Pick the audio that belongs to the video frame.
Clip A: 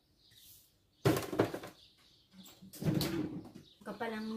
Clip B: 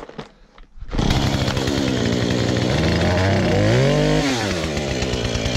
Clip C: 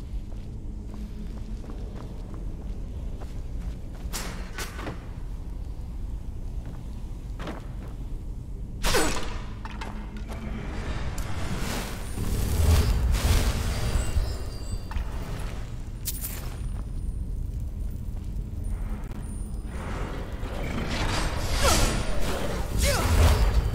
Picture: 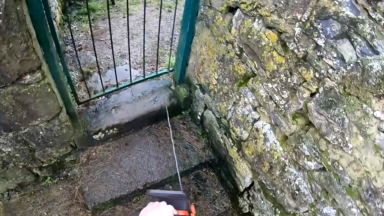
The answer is B